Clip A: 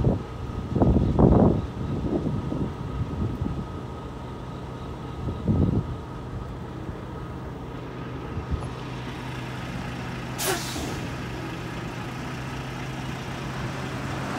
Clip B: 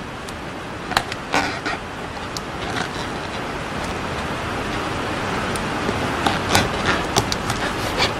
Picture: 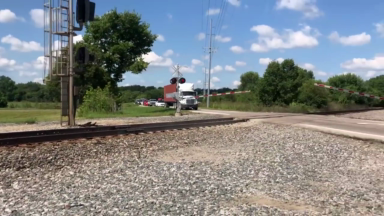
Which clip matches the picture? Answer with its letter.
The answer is A